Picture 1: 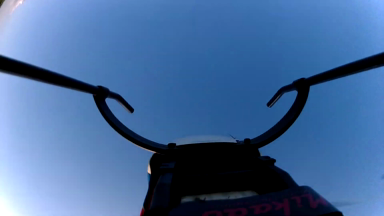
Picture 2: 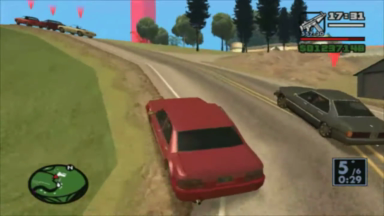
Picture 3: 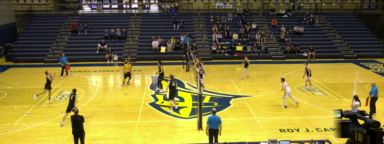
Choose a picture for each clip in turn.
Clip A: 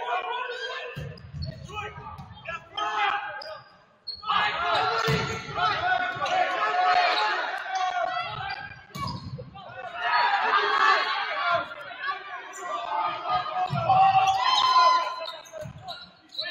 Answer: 3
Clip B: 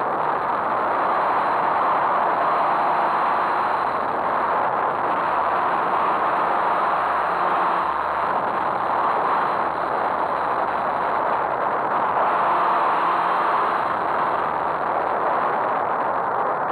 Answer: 1